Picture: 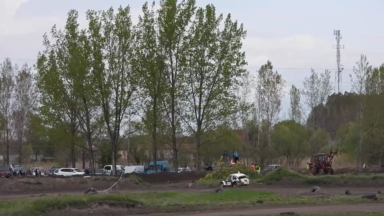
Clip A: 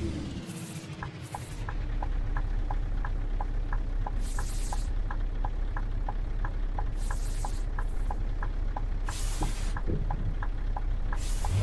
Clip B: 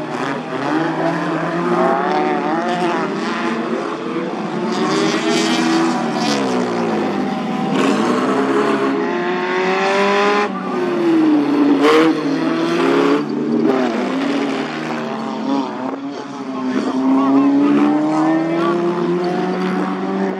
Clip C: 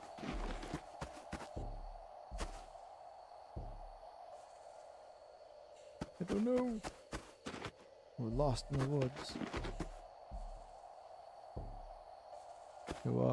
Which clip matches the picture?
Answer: B